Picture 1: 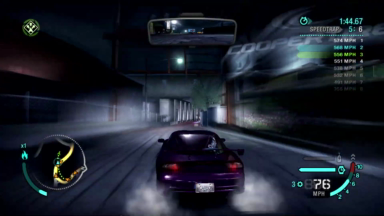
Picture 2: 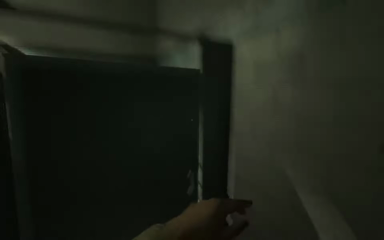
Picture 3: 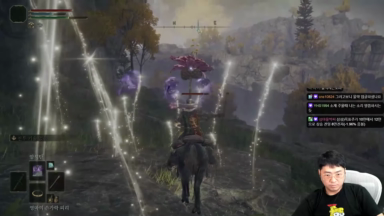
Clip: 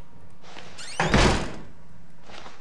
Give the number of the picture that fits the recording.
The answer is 2